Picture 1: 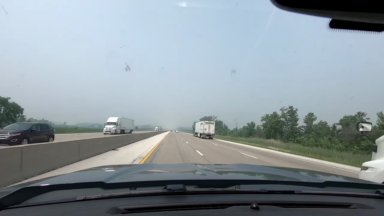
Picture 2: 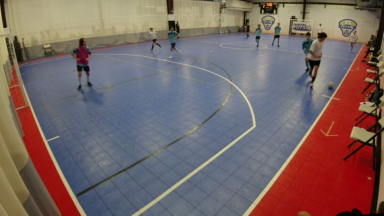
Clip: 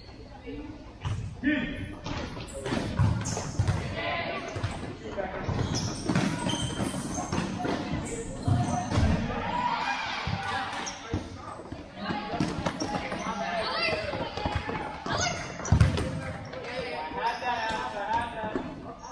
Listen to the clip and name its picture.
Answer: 2